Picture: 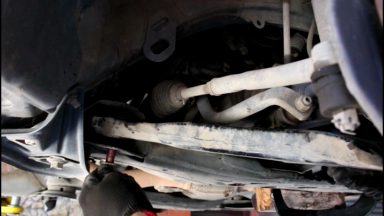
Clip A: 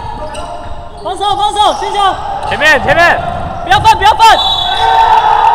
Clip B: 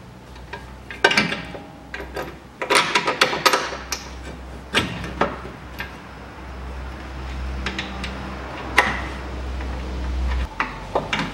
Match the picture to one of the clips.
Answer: B